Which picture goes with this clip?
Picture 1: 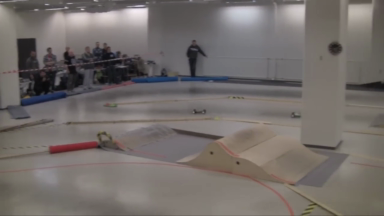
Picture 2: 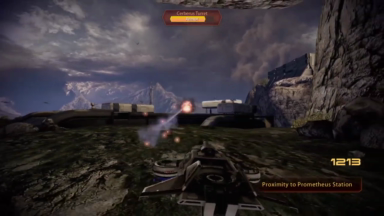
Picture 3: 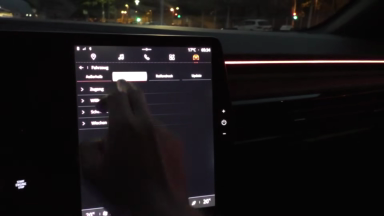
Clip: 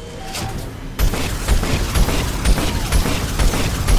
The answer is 2